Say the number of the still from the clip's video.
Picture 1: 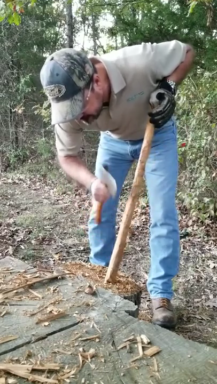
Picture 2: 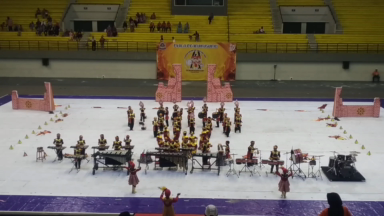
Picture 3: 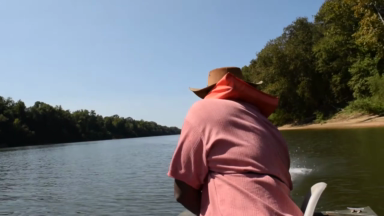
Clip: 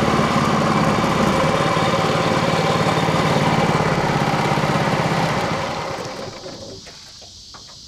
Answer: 3